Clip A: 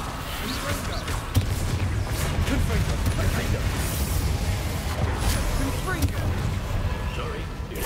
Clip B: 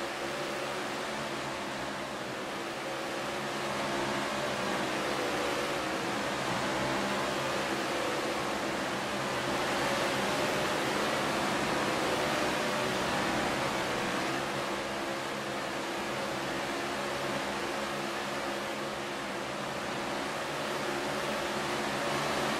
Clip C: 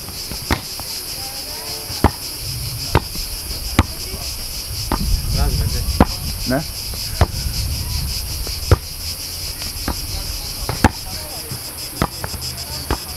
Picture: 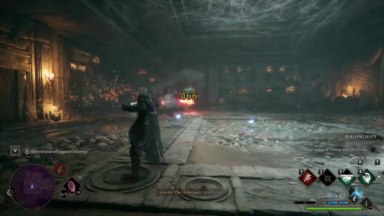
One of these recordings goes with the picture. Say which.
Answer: A